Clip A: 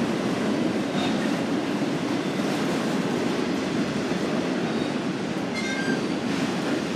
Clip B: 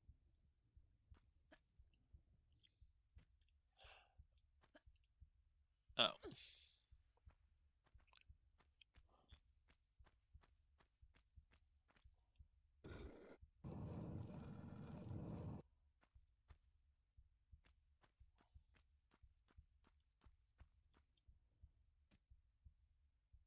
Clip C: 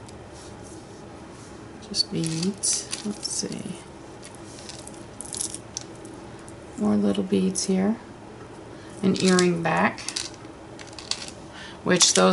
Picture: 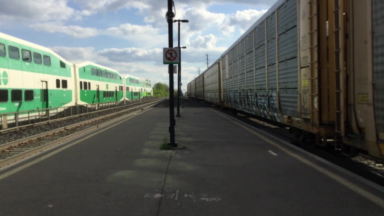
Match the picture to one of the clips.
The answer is A